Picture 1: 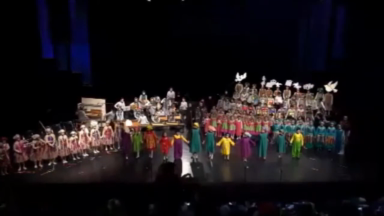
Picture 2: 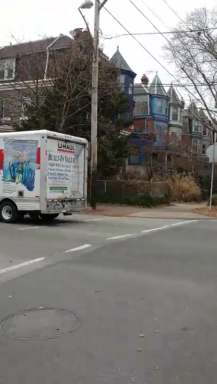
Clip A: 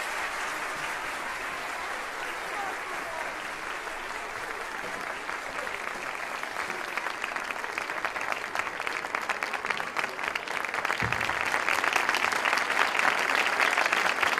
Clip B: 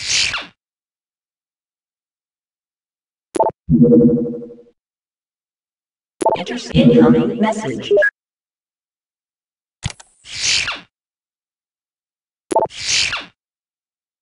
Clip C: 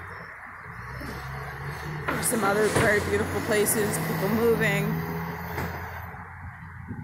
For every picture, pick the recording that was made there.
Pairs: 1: A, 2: C